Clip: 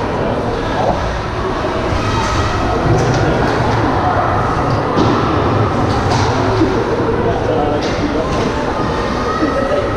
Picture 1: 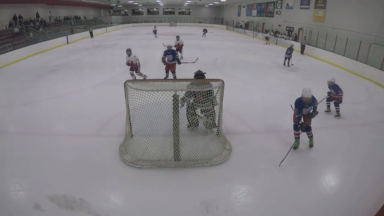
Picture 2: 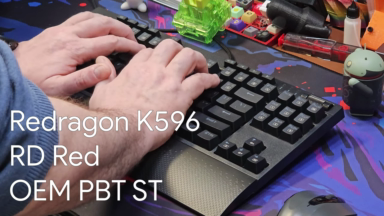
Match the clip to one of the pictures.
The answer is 1